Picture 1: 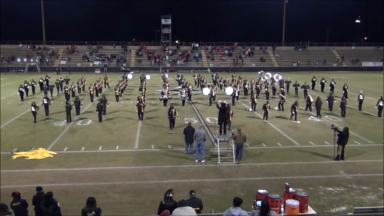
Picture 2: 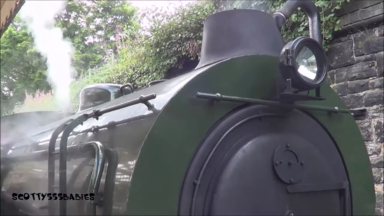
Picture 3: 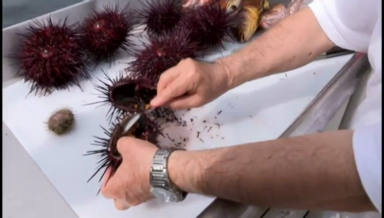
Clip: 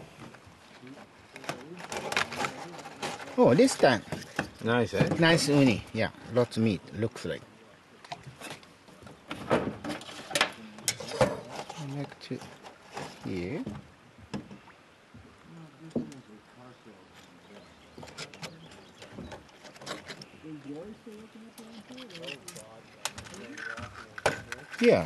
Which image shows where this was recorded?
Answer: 3